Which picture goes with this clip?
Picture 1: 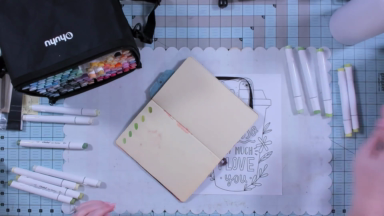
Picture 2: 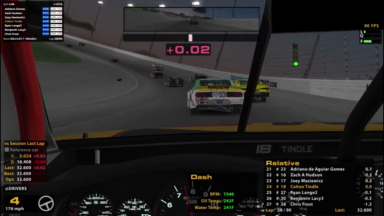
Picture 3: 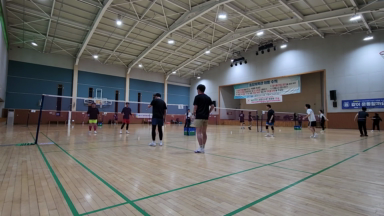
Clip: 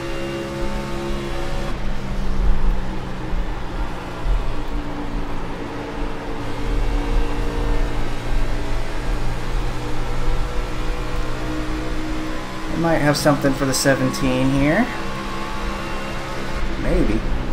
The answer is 2